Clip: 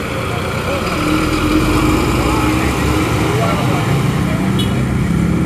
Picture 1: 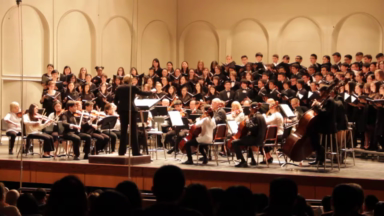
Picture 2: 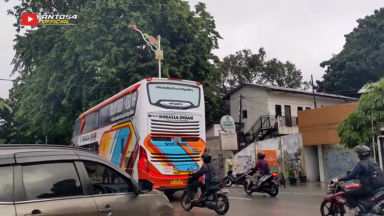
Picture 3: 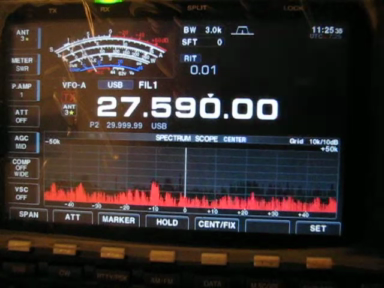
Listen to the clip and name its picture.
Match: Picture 2